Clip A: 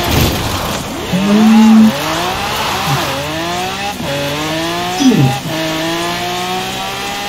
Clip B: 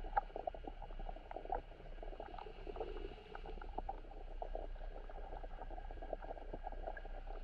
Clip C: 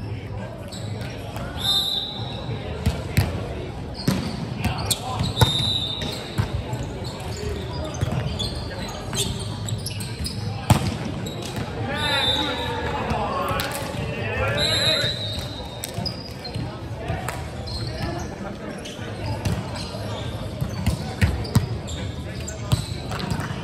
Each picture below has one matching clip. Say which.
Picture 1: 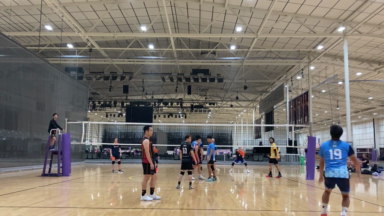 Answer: C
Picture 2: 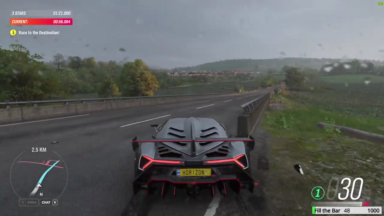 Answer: A